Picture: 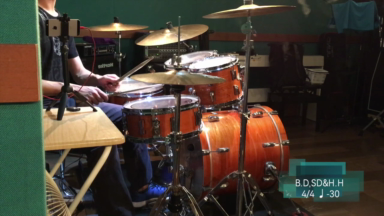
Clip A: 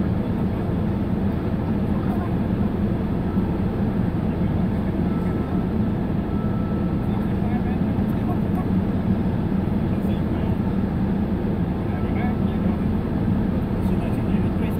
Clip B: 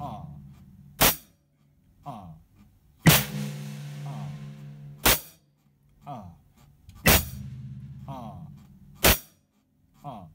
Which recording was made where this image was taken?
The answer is B